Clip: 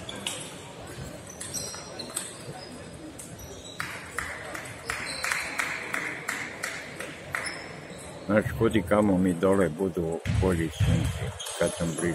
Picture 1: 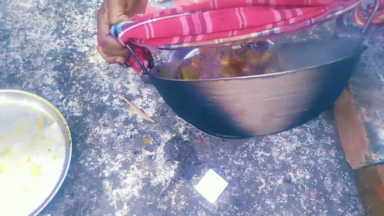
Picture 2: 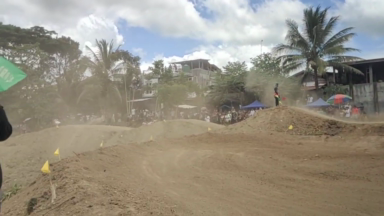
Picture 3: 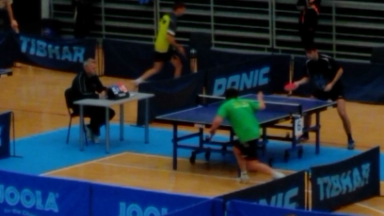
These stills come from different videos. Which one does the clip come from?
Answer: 3